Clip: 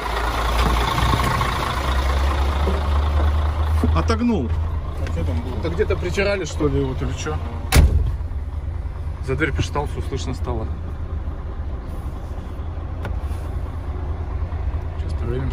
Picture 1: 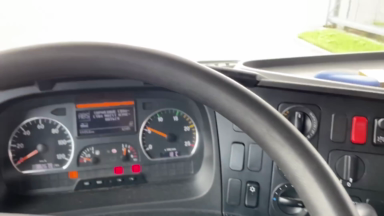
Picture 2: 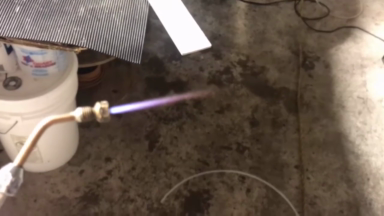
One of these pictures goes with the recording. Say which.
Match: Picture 1